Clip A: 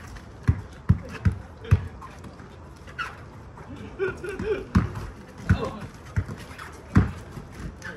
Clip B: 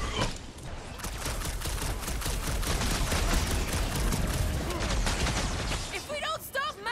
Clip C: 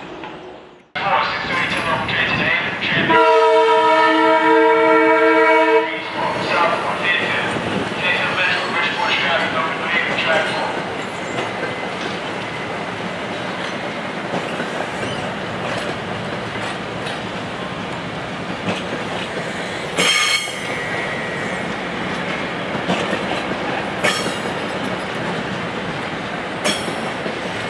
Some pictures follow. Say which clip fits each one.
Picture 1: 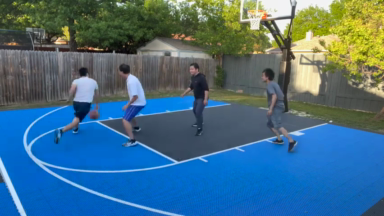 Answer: A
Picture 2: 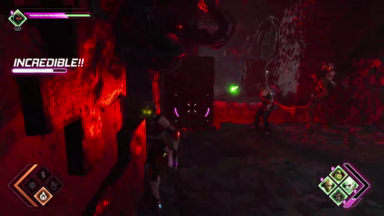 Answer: B